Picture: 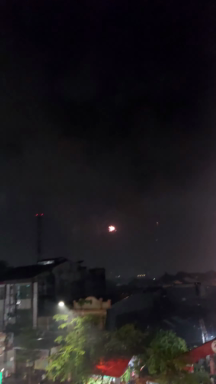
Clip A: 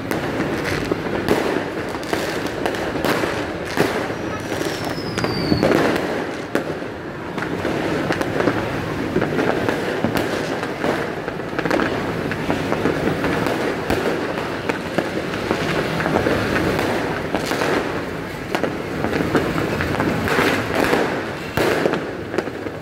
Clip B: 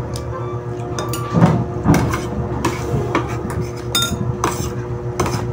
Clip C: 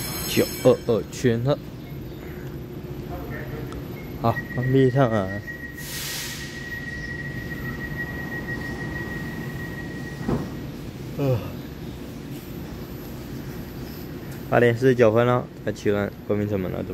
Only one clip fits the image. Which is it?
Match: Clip A